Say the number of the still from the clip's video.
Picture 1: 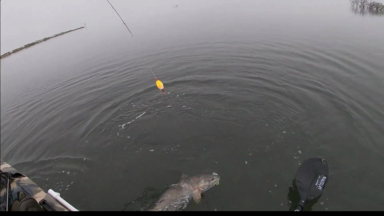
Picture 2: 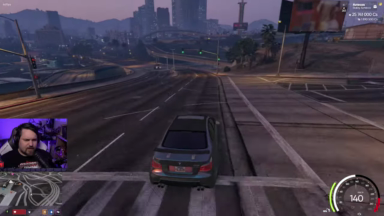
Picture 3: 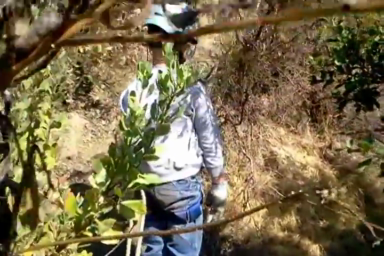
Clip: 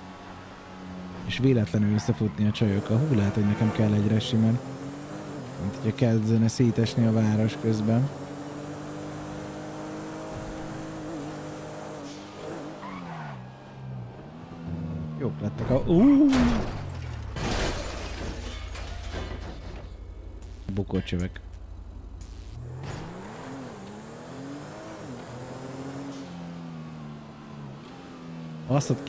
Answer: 2